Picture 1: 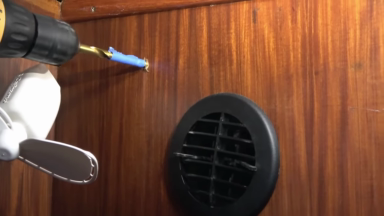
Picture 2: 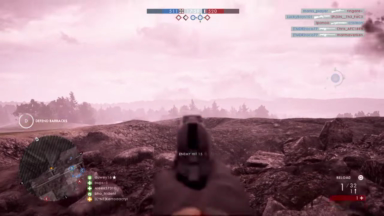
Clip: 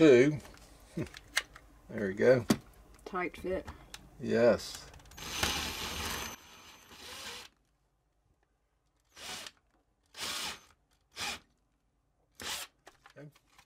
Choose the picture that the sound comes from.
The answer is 1